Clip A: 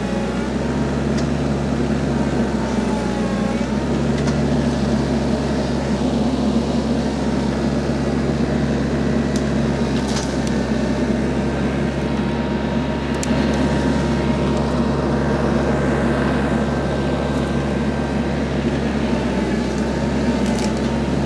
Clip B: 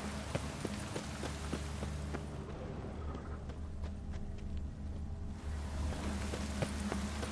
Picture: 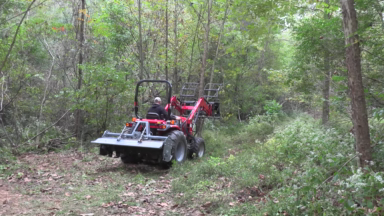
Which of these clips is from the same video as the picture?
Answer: A